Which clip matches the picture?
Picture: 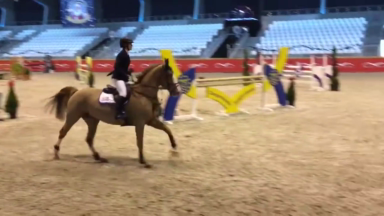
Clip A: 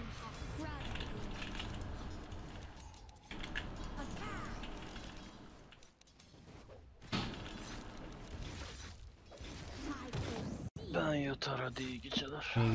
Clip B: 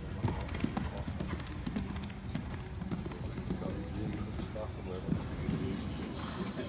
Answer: B